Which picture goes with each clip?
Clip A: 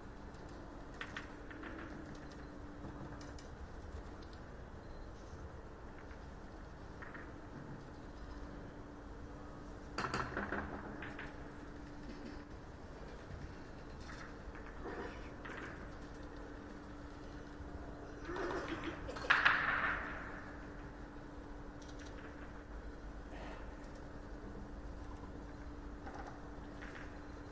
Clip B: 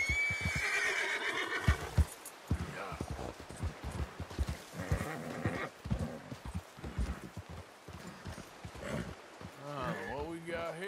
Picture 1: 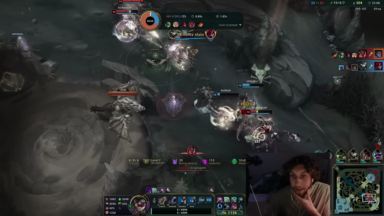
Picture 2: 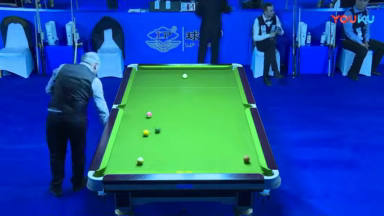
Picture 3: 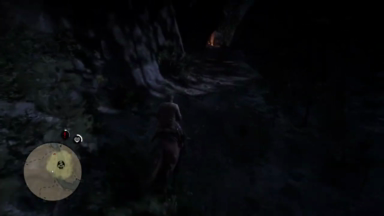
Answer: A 2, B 3